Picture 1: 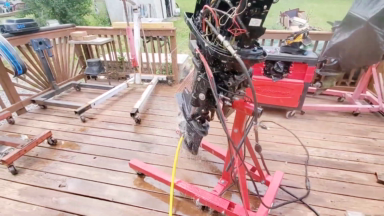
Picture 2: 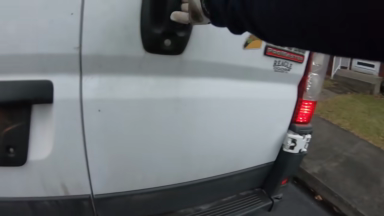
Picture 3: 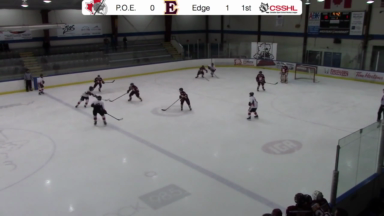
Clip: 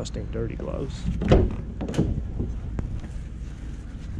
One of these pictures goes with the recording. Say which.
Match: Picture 2